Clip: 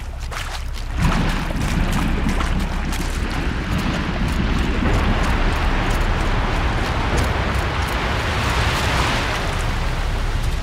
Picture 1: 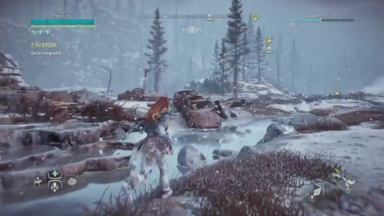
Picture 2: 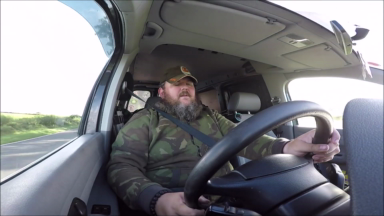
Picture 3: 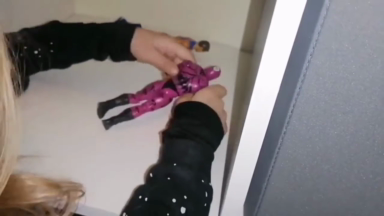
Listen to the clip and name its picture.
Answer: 1